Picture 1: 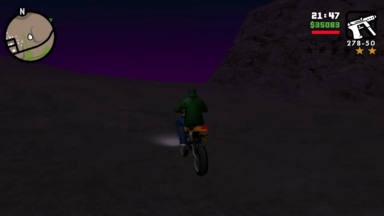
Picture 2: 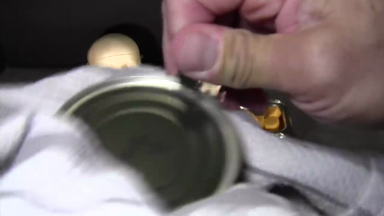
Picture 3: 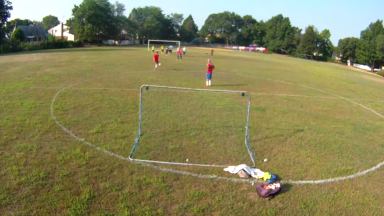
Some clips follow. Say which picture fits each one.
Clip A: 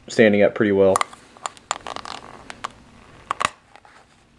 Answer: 2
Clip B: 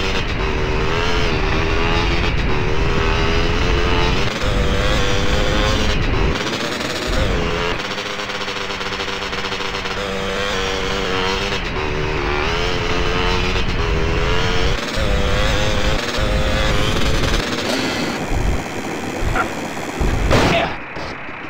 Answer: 1